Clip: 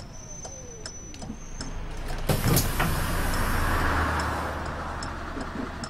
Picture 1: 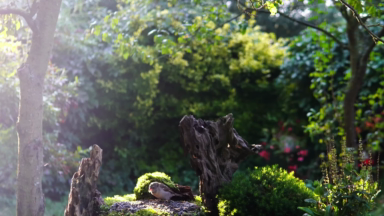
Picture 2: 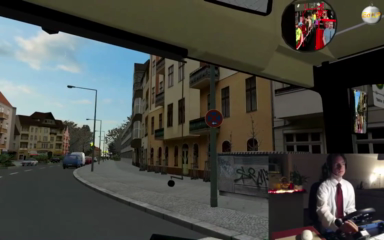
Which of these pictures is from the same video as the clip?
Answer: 2